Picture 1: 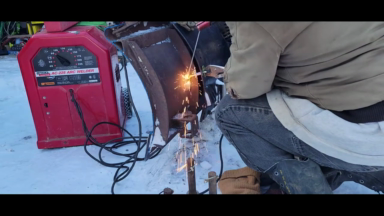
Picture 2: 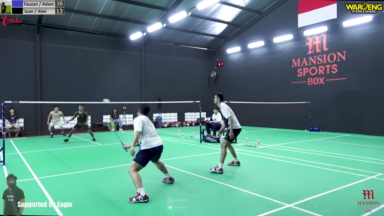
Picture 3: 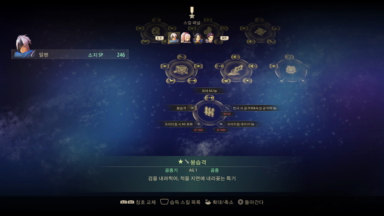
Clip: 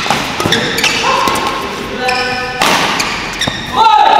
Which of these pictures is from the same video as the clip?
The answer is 2